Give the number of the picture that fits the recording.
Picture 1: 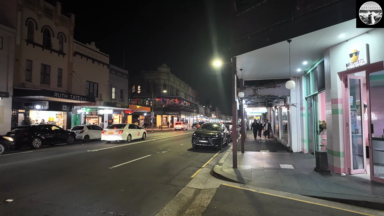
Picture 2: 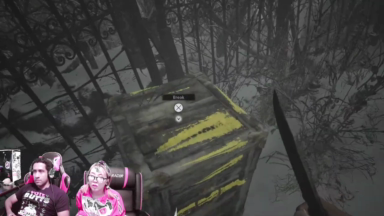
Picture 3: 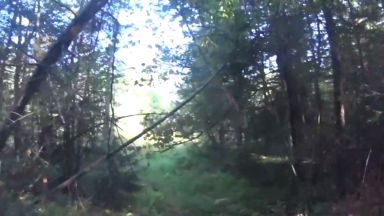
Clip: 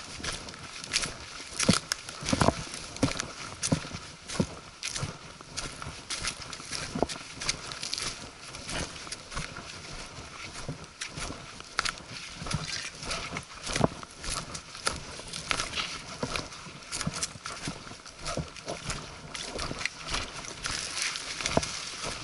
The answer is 3